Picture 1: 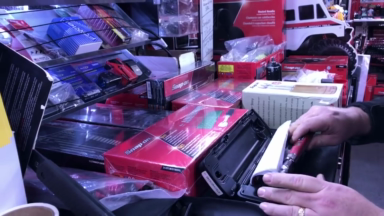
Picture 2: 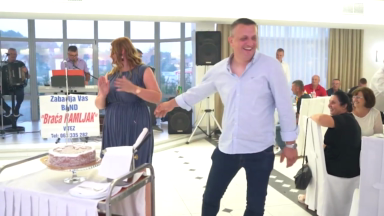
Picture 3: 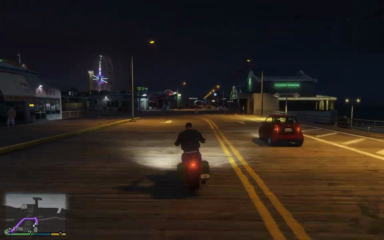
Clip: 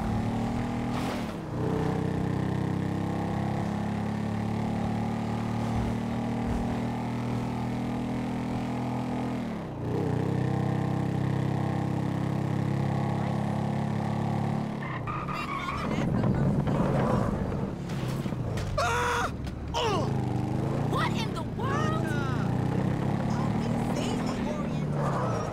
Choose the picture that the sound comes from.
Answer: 3